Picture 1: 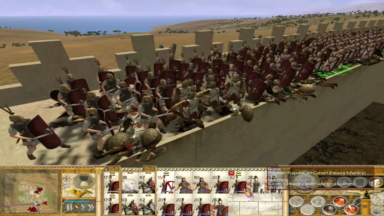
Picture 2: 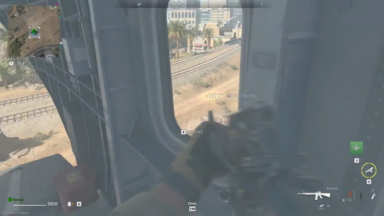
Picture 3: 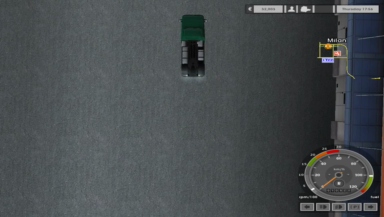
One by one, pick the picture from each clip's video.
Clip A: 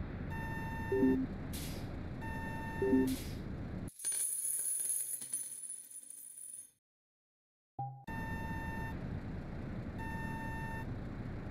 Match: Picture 3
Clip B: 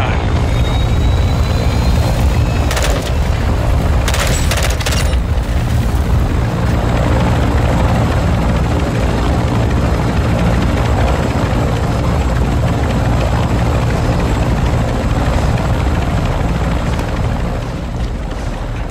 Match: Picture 2